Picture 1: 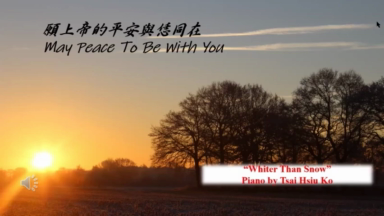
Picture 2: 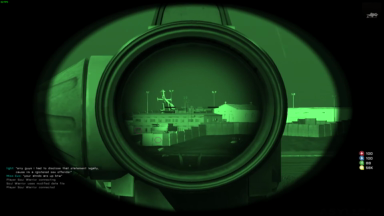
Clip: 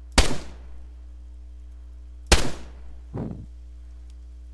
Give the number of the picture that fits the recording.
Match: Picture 2